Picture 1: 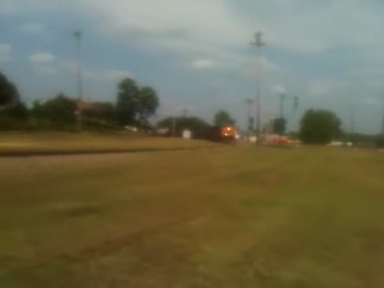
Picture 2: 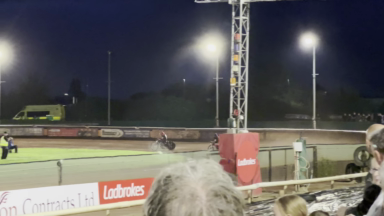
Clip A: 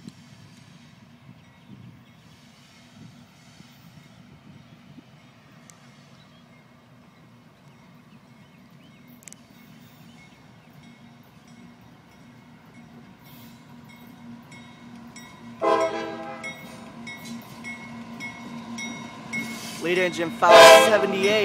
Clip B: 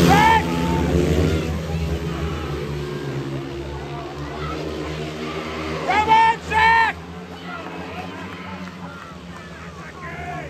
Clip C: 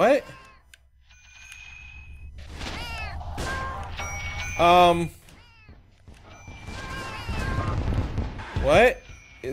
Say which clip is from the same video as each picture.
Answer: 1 A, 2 B